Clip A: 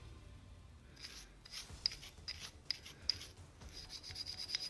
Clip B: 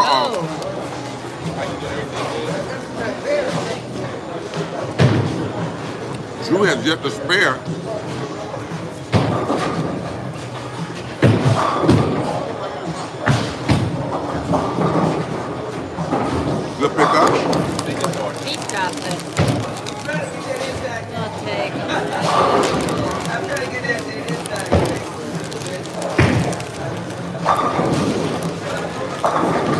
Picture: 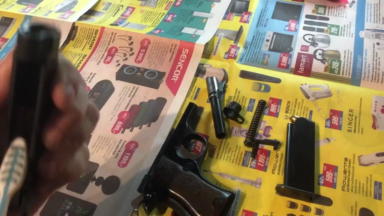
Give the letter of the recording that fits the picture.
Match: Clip A